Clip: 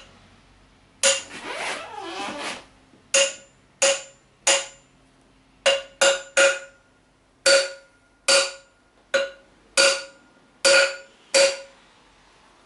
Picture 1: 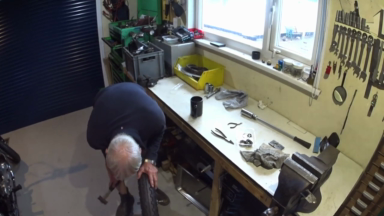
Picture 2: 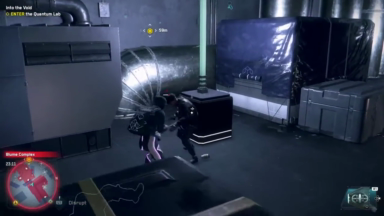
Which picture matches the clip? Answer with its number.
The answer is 1